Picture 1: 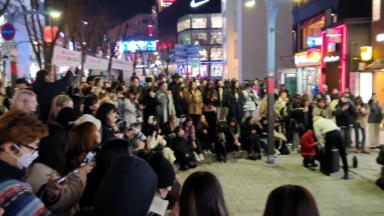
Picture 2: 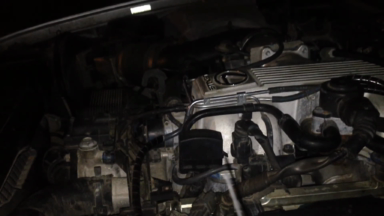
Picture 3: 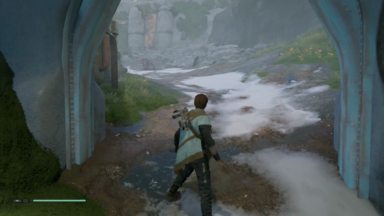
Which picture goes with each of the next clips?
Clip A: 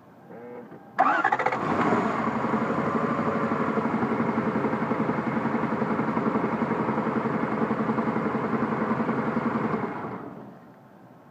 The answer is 2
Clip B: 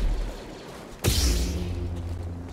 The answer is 3